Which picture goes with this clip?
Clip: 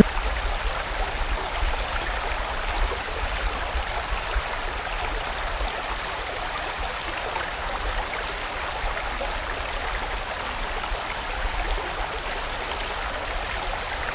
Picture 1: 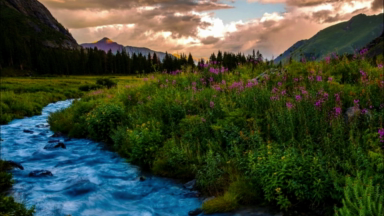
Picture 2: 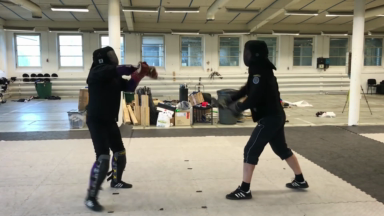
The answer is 1